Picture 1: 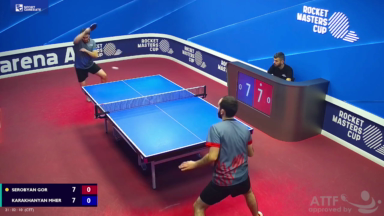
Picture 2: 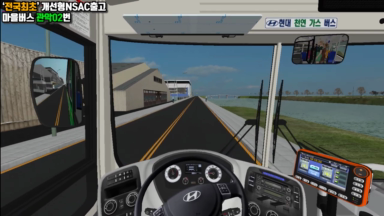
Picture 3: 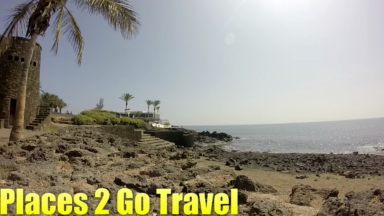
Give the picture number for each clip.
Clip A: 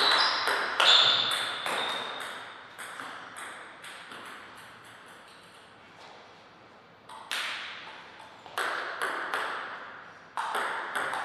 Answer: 1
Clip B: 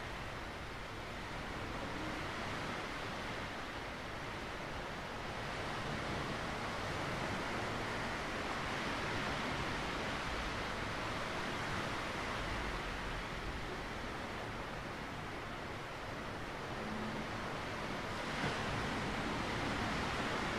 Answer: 3